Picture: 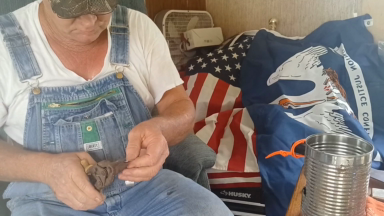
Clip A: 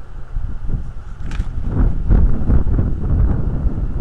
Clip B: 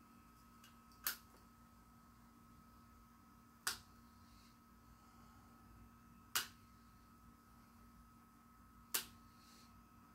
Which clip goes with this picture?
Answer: B